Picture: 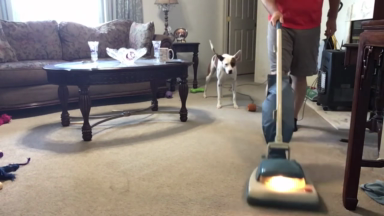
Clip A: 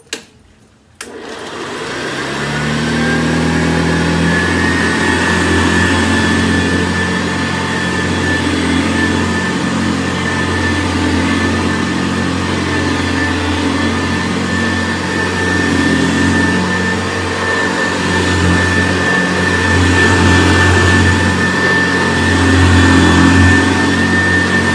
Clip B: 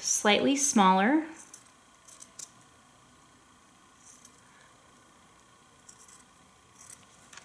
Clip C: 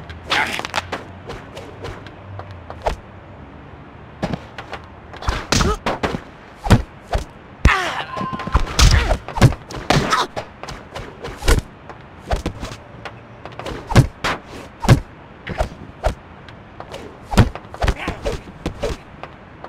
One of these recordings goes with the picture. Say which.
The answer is A